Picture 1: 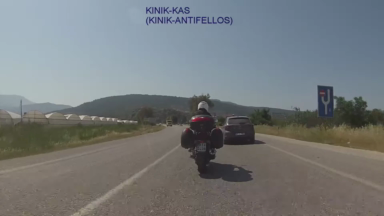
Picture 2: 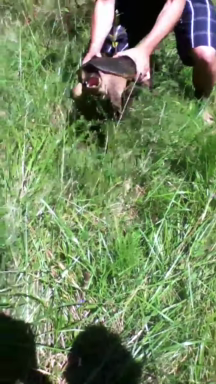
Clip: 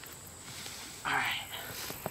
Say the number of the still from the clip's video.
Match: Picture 2